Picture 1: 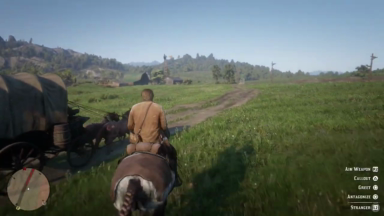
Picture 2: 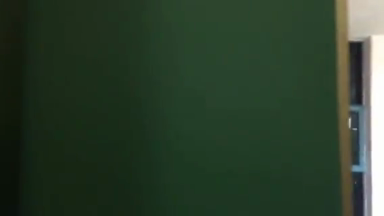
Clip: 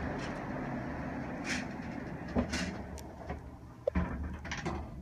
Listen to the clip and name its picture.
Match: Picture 2